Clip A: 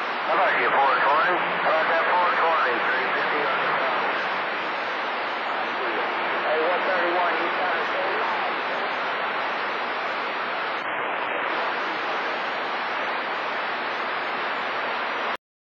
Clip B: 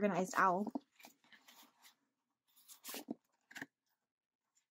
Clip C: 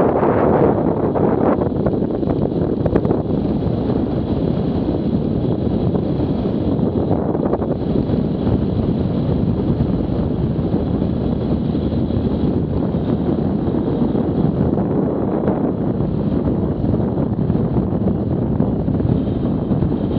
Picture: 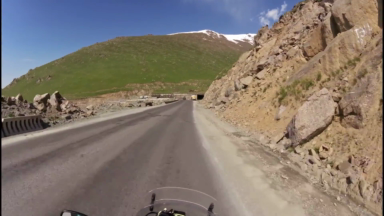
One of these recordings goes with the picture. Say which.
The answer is C